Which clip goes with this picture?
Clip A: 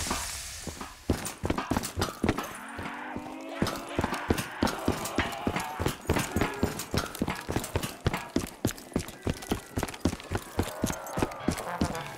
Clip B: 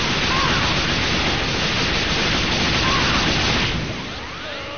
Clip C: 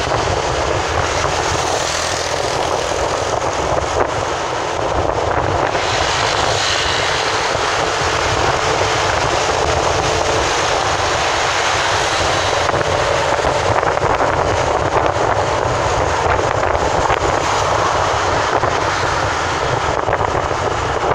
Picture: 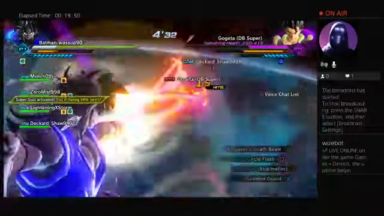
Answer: B